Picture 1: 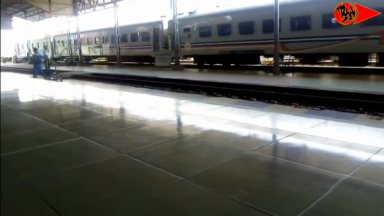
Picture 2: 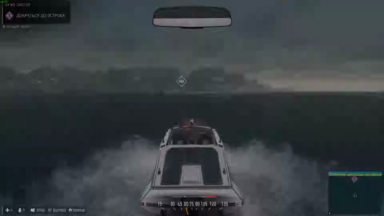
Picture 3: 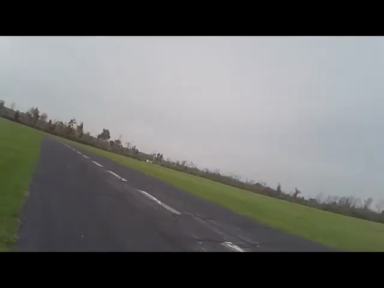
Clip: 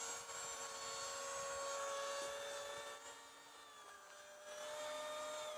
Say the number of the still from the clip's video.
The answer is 3